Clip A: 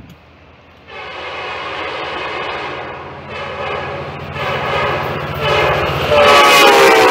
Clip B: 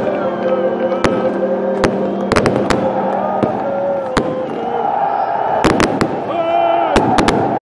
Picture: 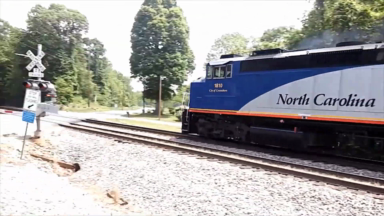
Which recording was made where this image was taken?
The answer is A